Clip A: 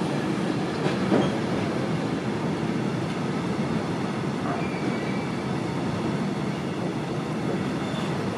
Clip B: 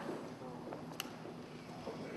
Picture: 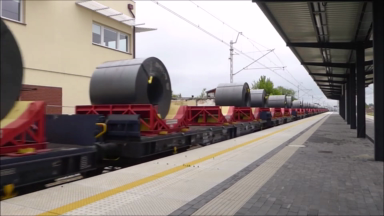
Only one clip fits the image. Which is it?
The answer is A